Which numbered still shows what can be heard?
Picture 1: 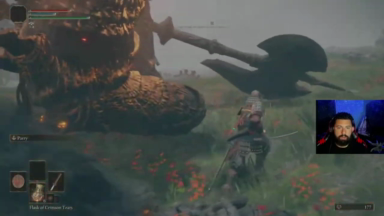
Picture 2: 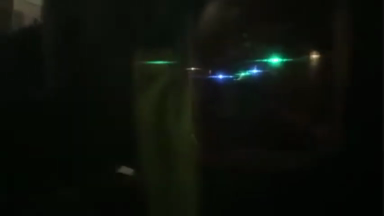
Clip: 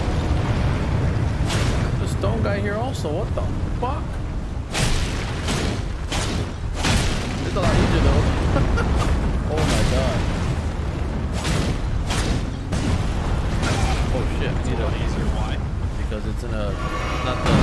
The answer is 1